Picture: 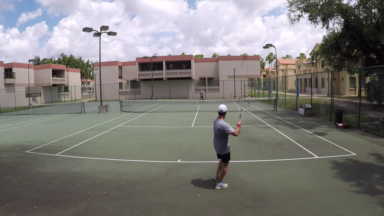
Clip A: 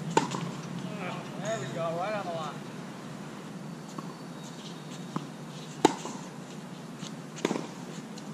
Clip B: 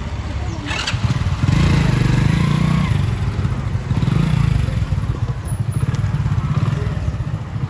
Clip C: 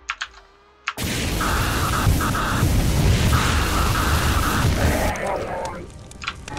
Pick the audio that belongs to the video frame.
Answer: A